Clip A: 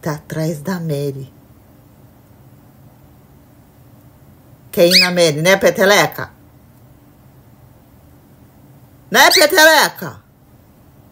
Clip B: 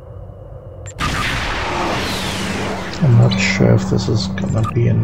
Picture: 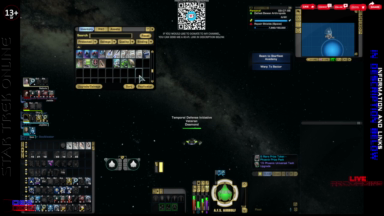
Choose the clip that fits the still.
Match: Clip B